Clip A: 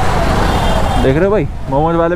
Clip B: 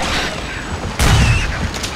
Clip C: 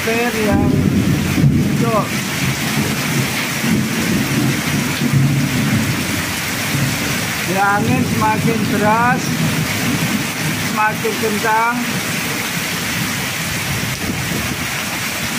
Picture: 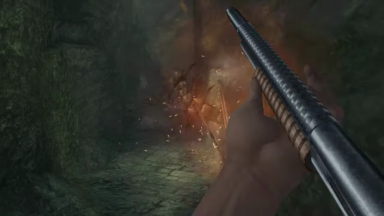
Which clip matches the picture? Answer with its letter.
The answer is B